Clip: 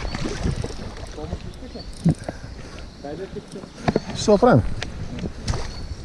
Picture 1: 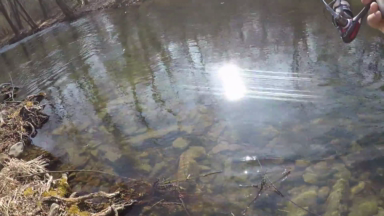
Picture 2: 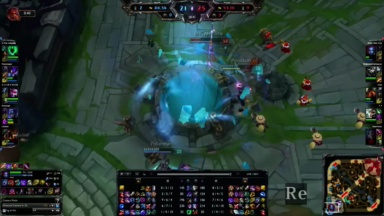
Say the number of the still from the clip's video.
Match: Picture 1